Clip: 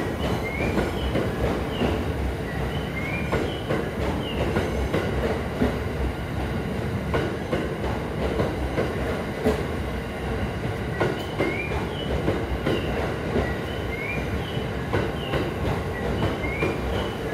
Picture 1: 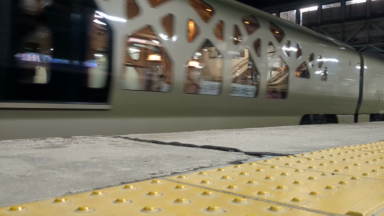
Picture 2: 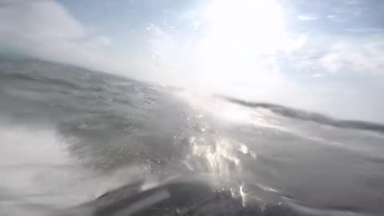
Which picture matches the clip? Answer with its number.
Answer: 1